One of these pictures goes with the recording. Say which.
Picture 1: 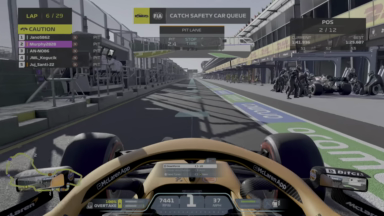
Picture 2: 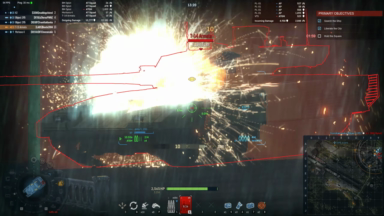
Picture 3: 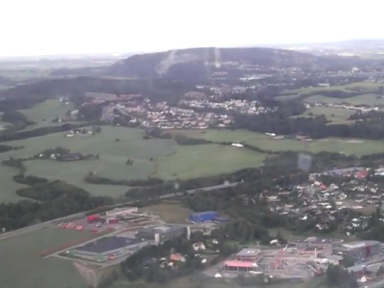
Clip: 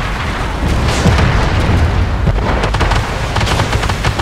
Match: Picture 2